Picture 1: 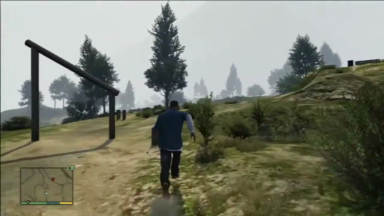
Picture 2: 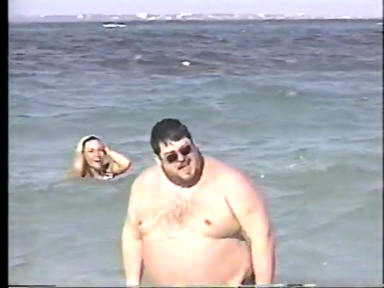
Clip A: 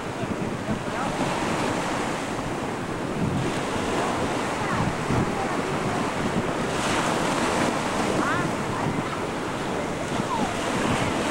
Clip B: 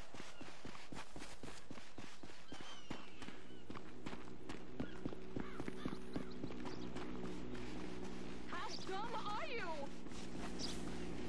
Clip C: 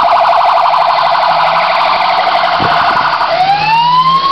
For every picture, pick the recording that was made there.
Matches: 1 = B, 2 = A